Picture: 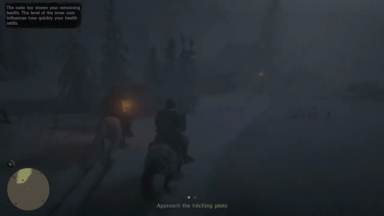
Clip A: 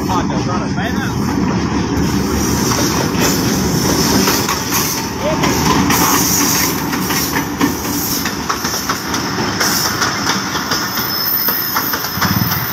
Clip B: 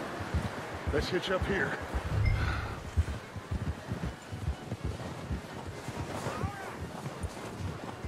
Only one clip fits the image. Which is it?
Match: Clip B